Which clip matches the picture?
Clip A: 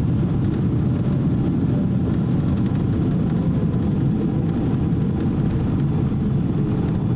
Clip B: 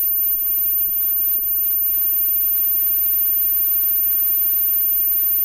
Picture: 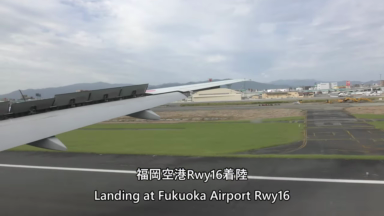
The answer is A